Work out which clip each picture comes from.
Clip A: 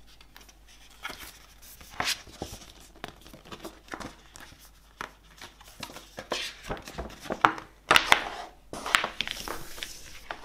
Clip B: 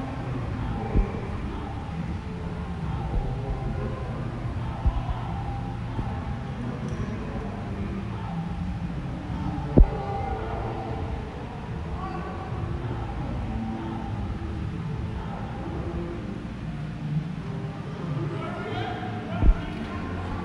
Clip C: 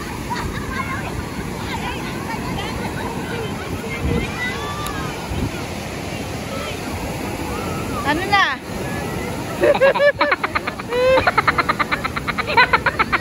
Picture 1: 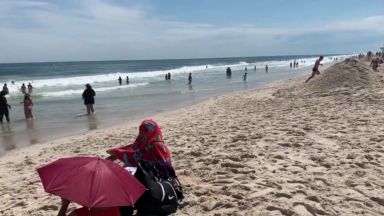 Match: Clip C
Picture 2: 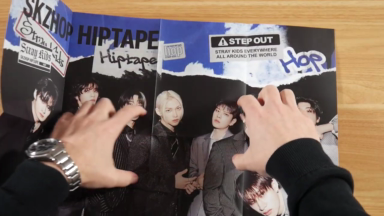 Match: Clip A